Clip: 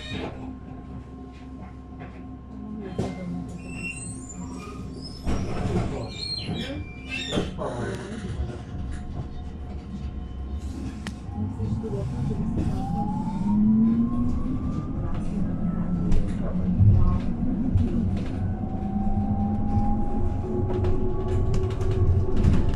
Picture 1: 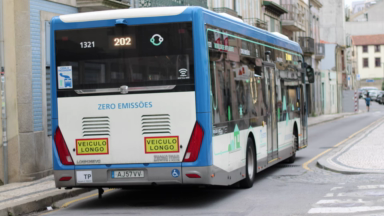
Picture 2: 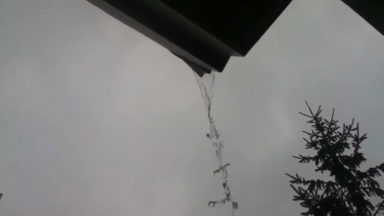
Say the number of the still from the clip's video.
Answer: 1